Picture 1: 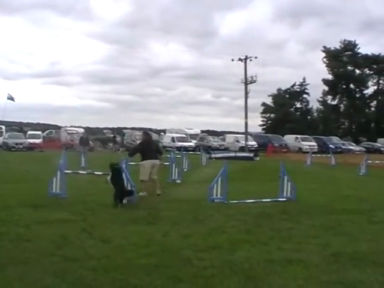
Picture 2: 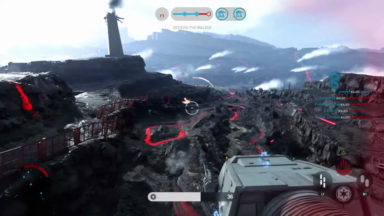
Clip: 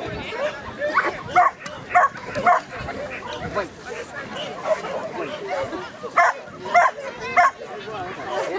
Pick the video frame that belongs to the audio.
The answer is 1